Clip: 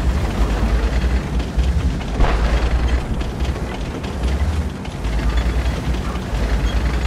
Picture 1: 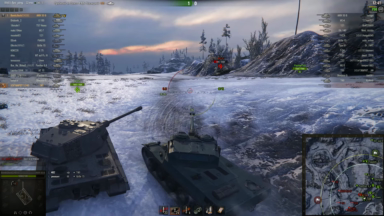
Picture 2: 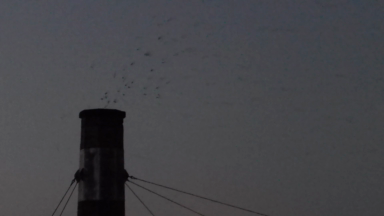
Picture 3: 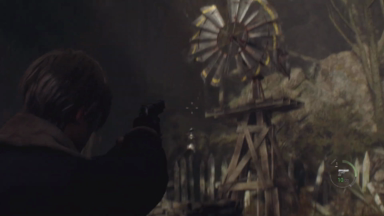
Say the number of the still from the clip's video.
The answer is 1